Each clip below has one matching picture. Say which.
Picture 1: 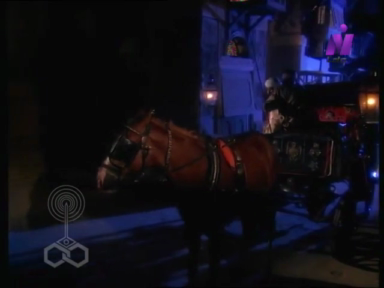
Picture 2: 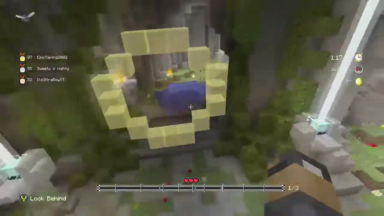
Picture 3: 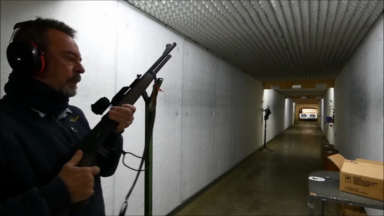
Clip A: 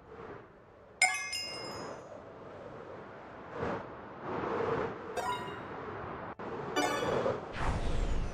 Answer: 2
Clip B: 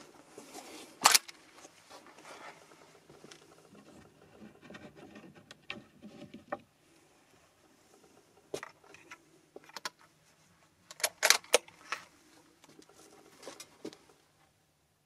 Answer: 3